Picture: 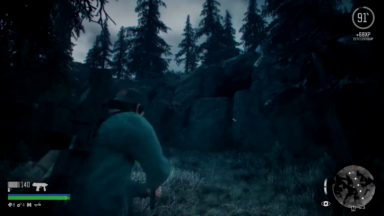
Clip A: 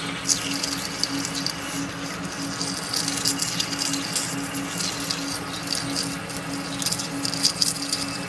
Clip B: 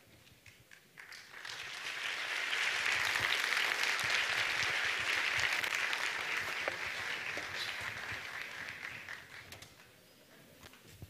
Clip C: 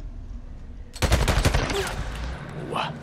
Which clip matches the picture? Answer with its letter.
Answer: C